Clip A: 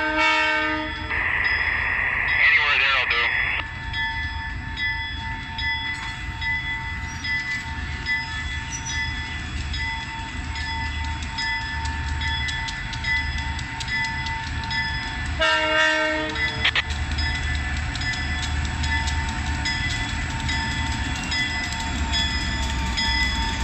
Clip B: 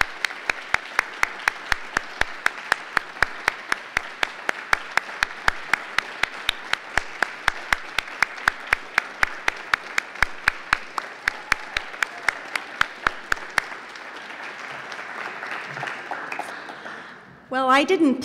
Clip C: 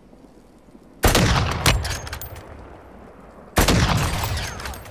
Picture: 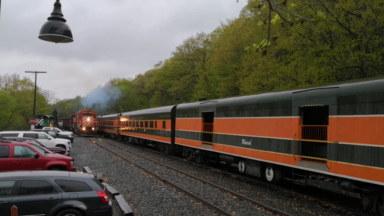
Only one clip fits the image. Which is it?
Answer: A